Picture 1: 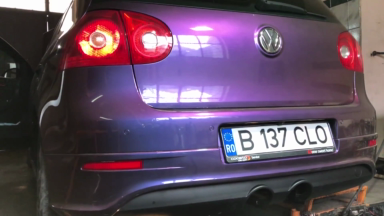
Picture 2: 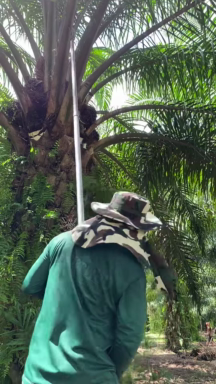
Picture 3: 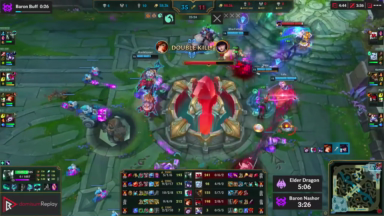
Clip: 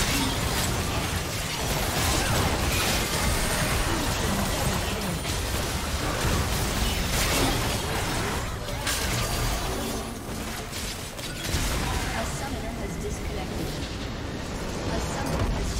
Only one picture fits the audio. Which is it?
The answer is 3